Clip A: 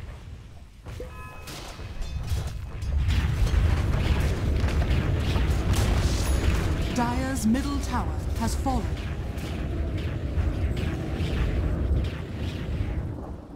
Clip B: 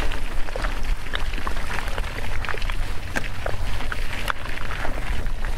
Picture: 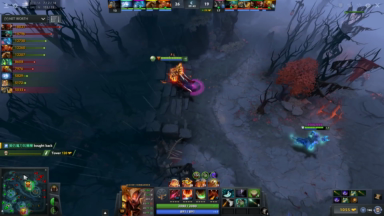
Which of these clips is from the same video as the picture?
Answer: A